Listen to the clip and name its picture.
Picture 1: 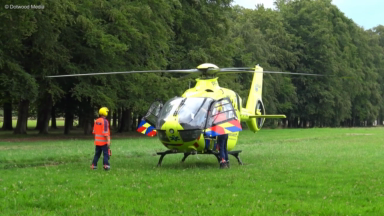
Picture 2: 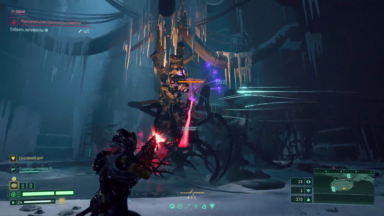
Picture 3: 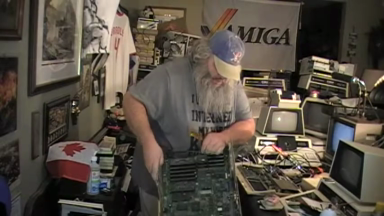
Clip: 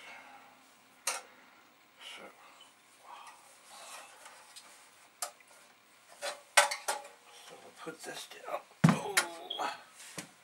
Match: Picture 3